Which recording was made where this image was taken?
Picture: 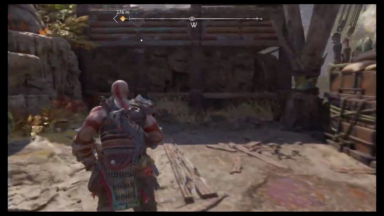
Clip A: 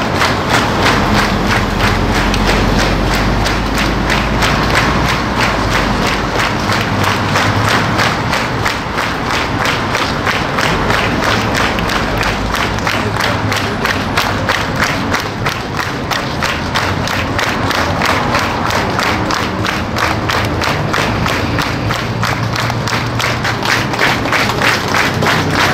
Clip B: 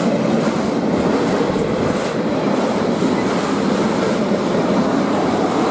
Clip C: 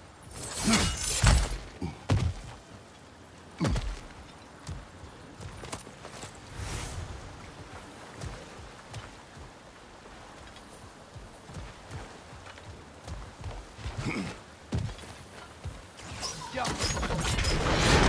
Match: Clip C